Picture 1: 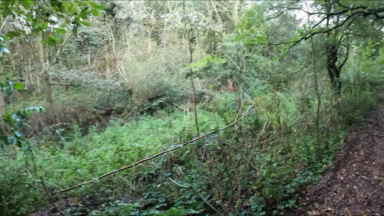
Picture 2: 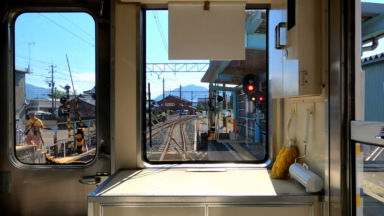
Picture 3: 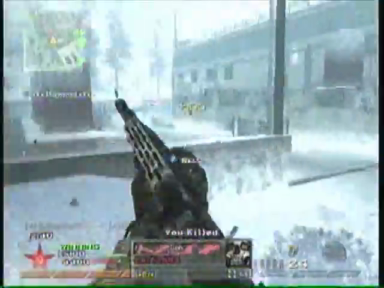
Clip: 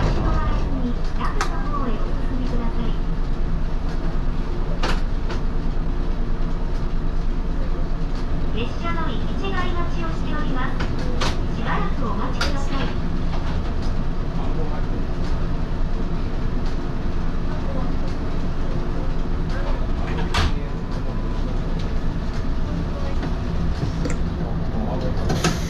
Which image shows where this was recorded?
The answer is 2